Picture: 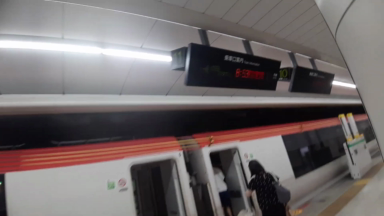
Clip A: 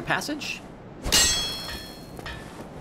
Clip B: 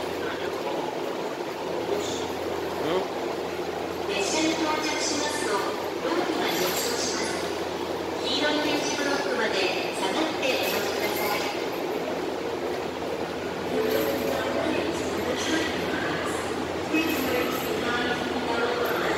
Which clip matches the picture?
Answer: B